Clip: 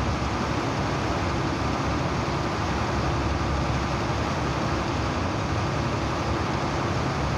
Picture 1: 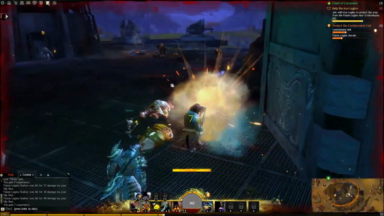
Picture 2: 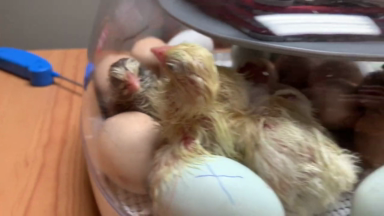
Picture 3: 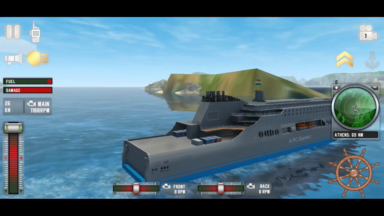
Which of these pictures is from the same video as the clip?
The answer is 3